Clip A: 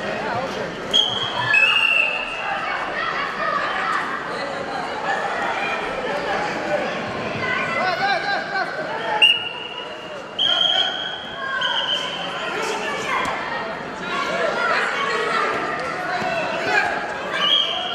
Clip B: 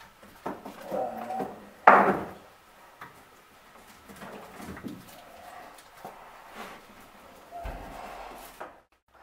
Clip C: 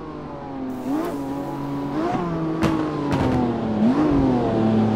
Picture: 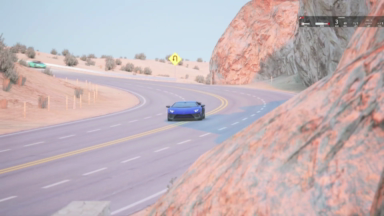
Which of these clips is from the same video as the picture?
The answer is C